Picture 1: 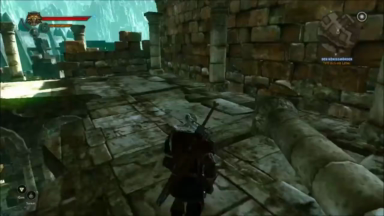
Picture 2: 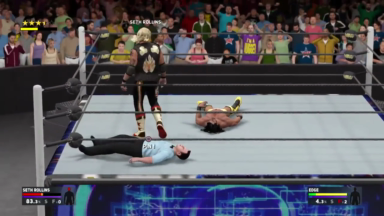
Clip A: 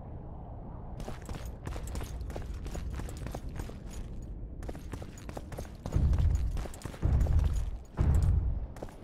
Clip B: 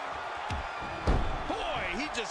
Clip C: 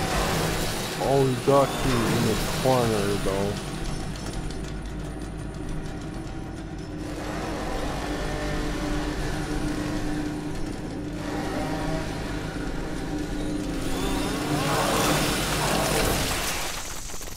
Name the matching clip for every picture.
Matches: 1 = A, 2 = B